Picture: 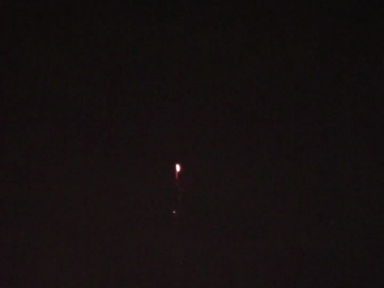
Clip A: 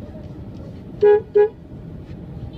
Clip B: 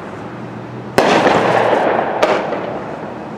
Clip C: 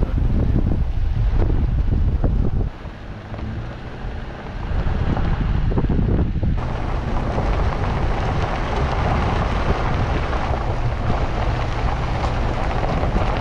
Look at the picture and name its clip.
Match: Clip B